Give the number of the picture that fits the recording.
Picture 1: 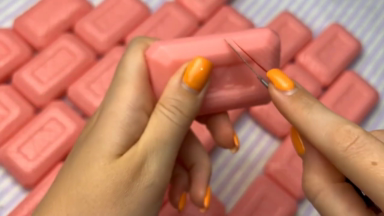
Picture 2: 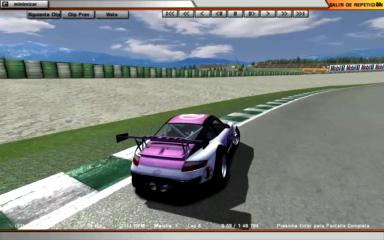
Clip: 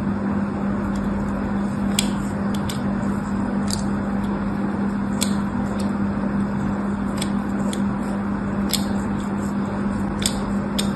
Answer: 1